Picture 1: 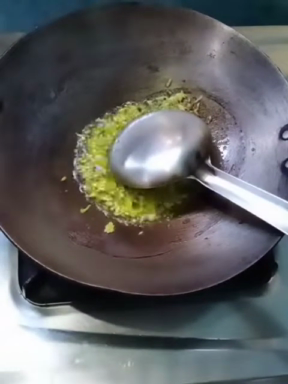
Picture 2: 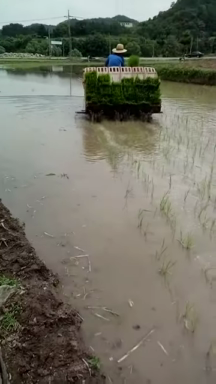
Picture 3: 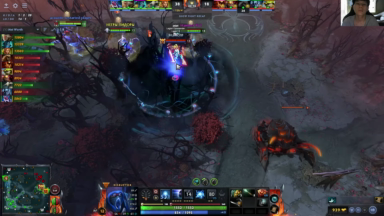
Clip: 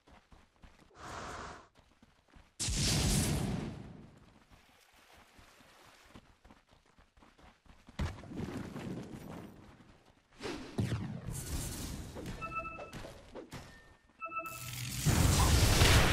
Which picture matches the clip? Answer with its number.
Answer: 3